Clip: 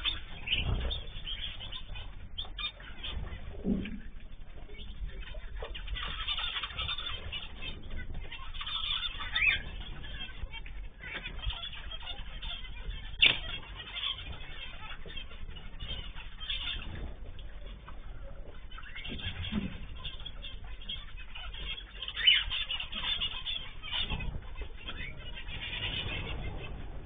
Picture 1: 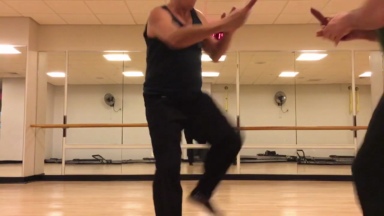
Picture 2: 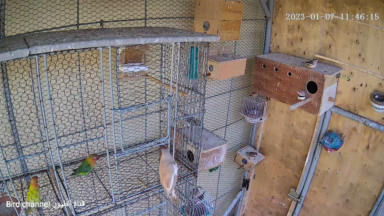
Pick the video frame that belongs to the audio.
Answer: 2